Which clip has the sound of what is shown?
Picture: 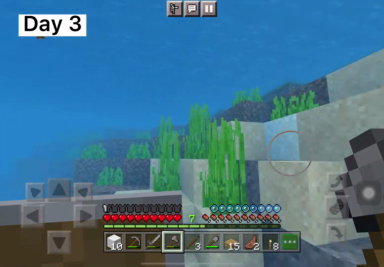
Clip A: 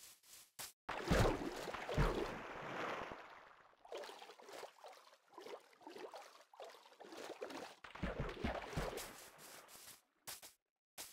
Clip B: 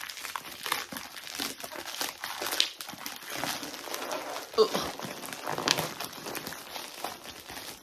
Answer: A